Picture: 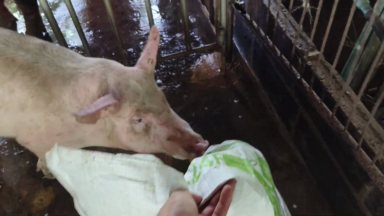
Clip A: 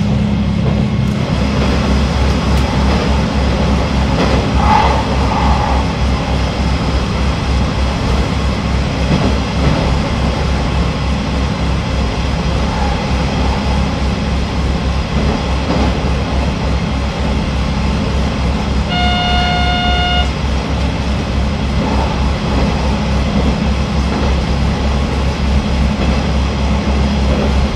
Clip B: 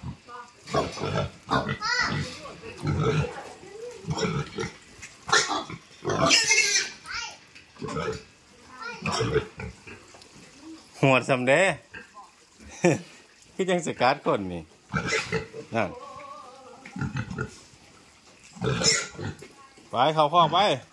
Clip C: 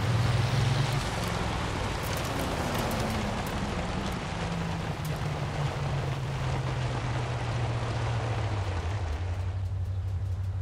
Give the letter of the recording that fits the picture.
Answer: B